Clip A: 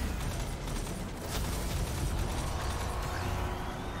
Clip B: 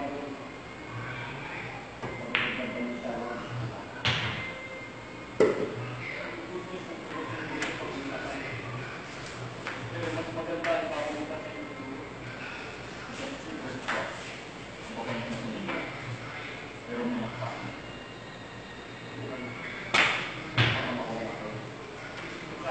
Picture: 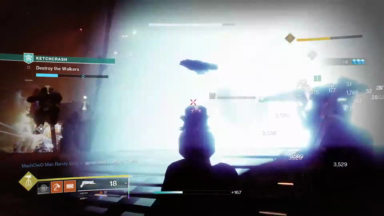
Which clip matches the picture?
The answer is A